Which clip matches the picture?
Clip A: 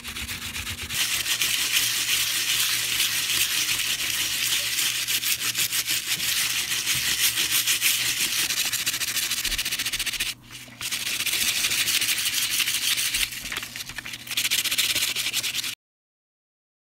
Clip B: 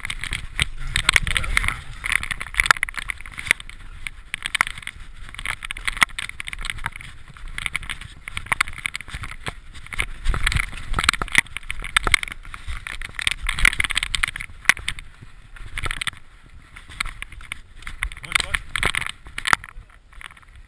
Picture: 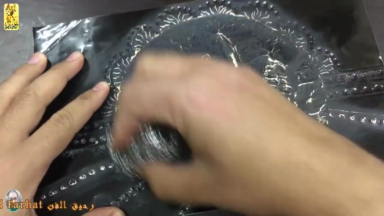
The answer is A